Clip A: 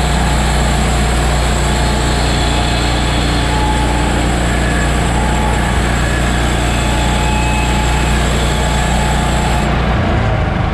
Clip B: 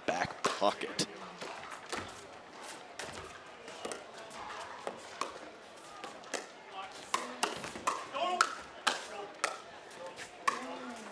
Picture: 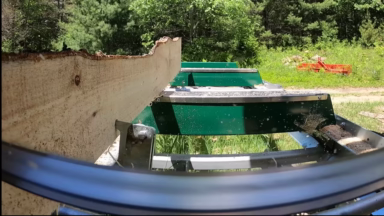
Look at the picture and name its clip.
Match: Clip A